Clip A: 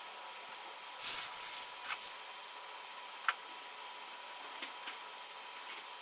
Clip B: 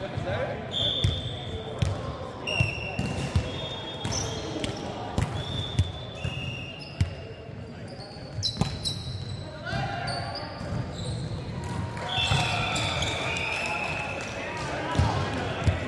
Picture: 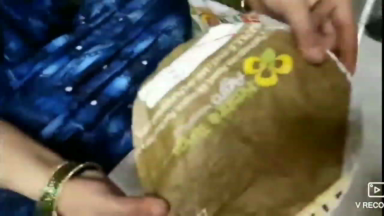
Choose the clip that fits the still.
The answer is A